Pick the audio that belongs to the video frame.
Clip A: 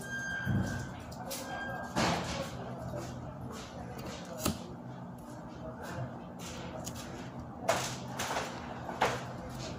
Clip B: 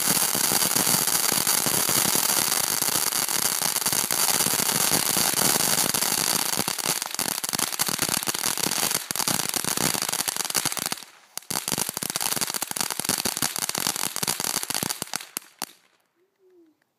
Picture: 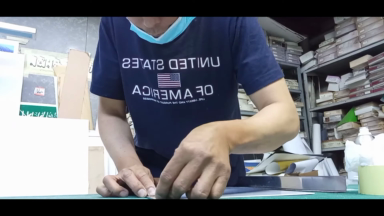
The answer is A